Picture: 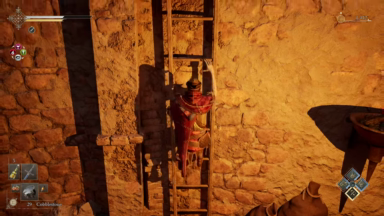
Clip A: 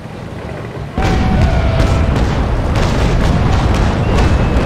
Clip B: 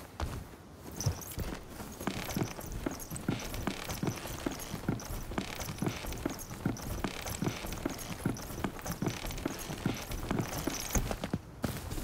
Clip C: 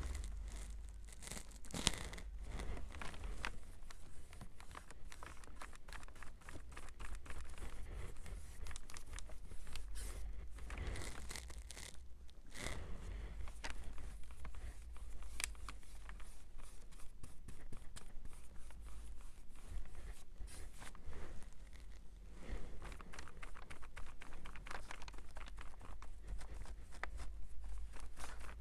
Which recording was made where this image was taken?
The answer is B